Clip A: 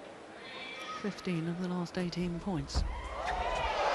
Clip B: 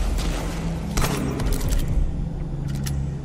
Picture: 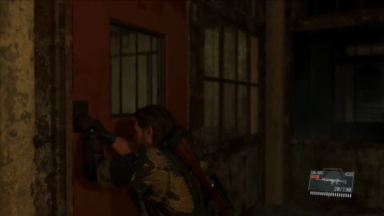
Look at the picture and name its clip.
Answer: B